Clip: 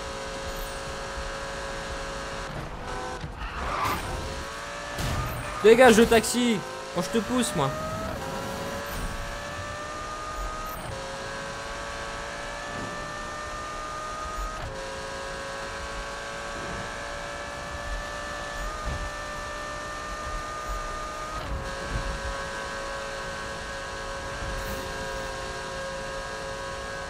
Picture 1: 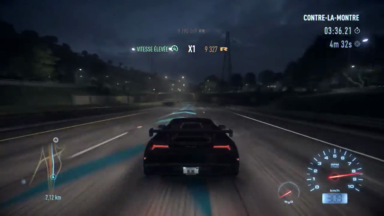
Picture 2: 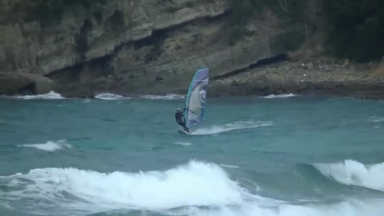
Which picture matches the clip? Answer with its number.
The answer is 1